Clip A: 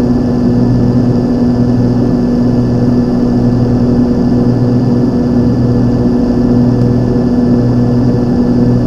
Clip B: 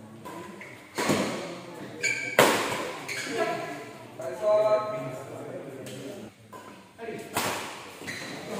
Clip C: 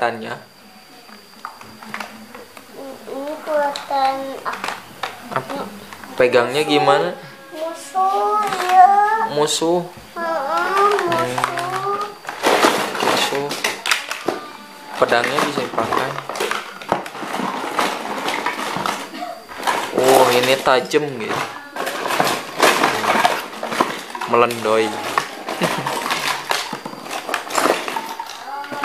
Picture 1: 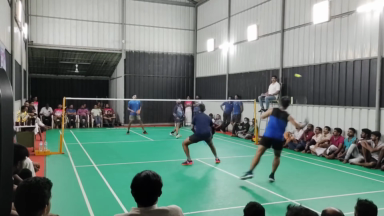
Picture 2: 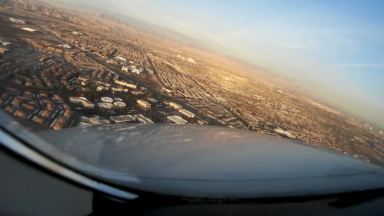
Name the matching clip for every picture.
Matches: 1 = B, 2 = A